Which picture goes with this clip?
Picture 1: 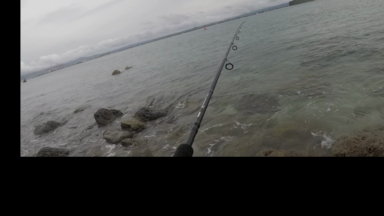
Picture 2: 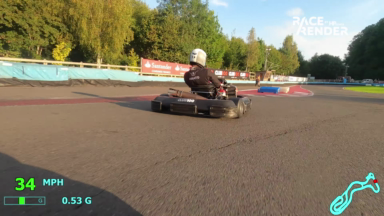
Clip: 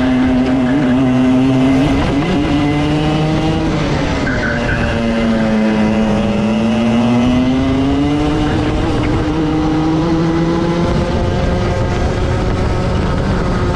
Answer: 2